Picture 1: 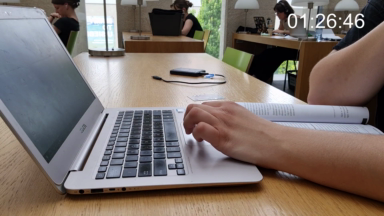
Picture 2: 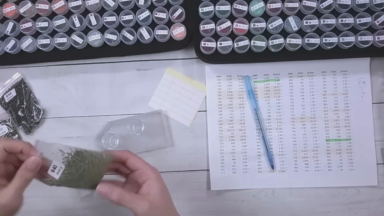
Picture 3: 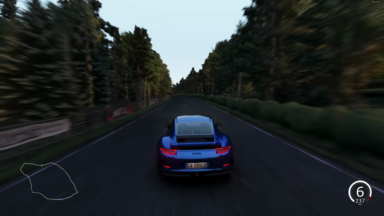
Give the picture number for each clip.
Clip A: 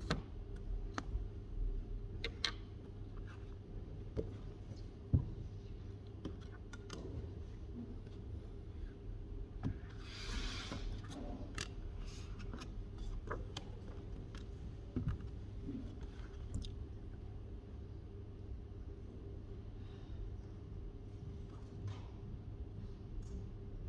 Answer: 1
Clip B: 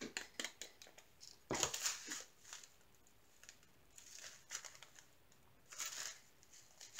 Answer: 2